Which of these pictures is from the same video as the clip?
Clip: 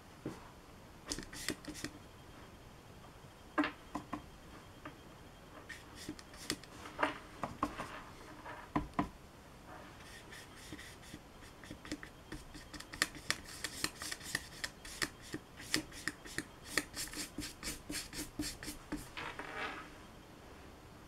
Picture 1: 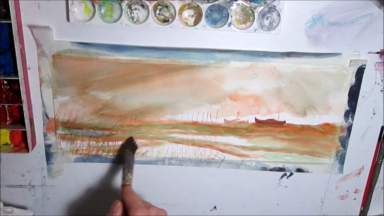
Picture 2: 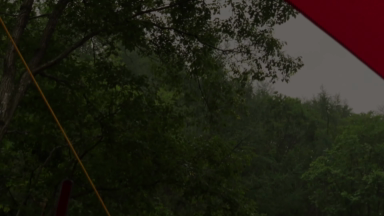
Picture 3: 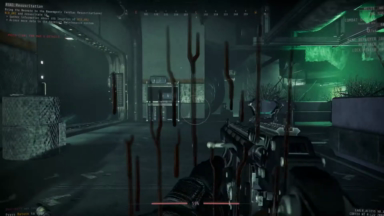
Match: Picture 1